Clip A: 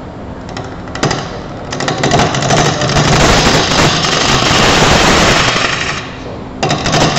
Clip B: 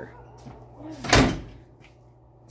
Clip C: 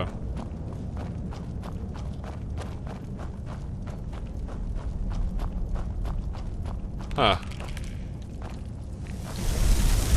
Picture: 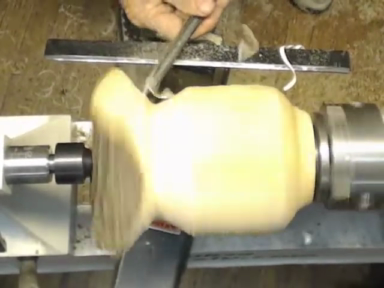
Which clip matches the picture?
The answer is A